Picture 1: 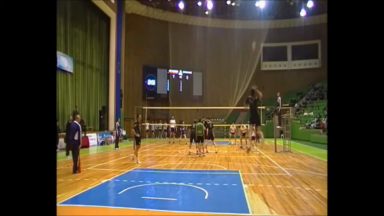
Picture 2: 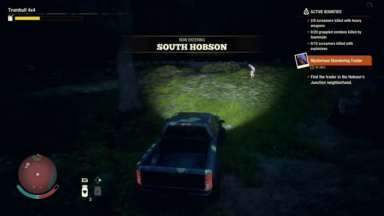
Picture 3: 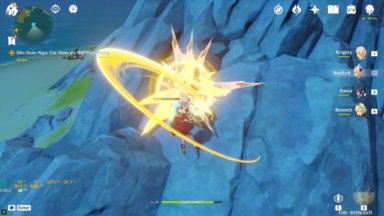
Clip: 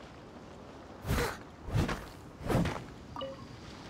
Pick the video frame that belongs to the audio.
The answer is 3